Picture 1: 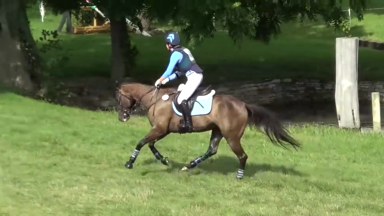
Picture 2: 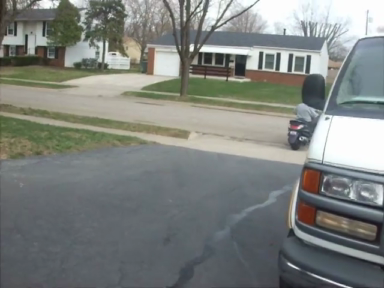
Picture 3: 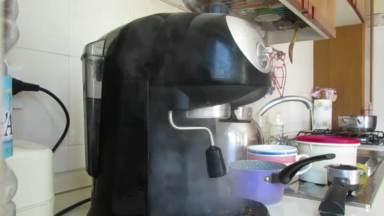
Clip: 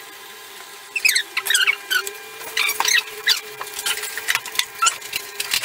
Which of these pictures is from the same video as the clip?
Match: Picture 3